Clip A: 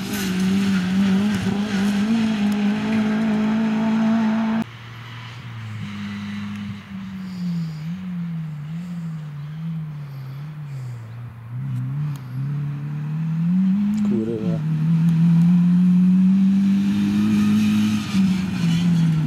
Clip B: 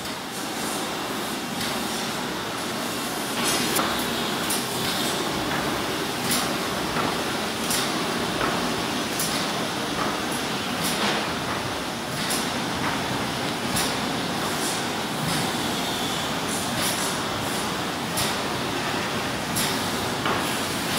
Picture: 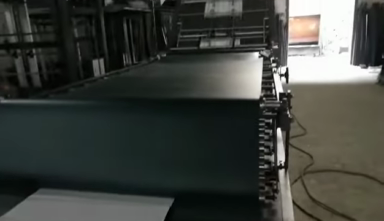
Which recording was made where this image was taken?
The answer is B